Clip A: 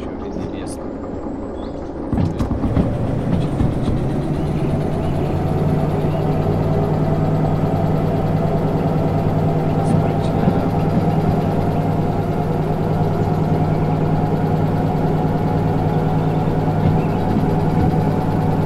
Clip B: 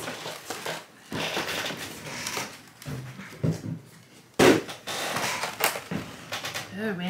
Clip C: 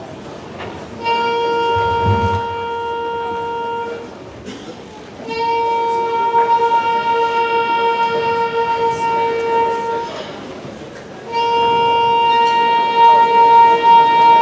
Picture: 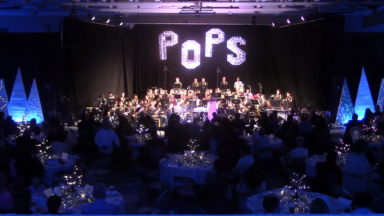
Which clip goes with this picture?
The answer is C